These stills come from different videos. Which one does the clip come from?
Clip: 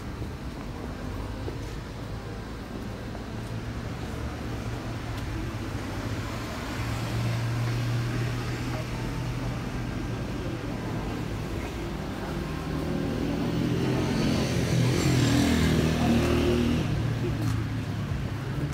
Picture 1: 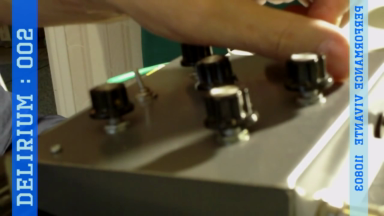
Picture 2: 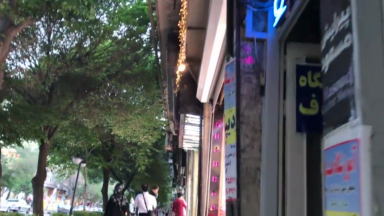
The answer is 2